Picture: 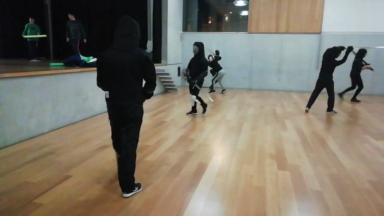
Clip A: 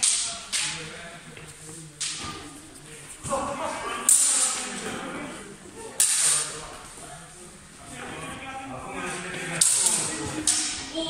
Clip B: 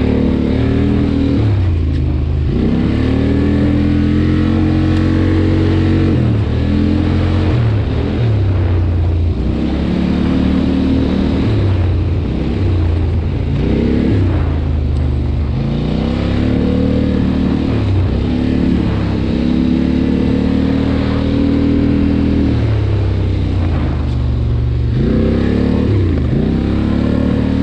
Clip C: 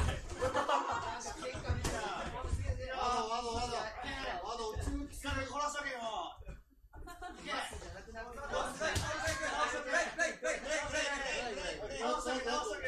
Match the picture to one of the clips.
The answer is A